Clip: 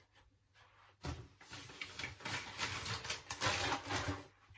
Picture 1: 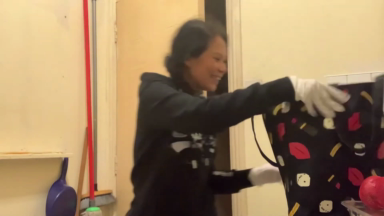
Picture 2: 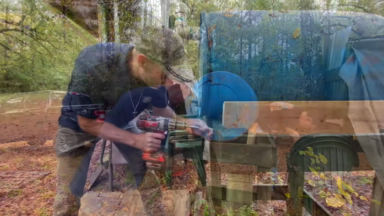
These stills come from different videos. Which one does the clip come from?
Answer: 1